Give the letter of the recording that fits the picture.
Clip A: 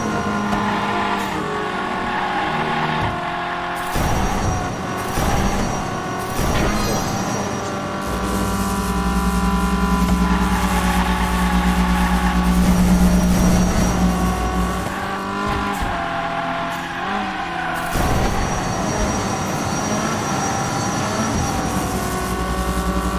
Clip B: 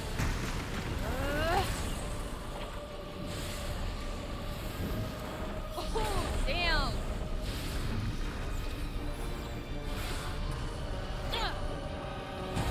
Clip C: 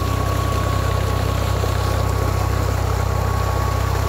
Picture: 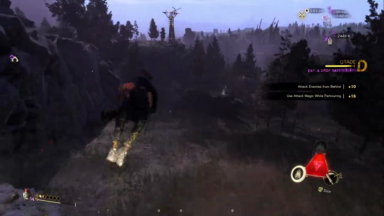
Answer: B